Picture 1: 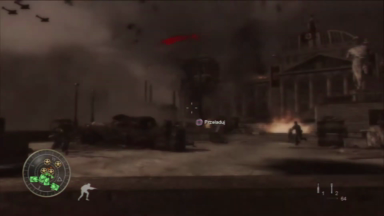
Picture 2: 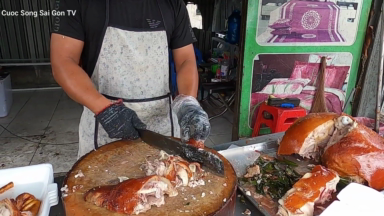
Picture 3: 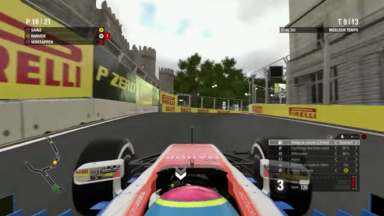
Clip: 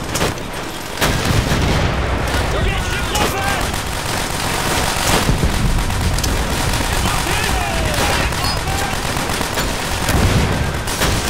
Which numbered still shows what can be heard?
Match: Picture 1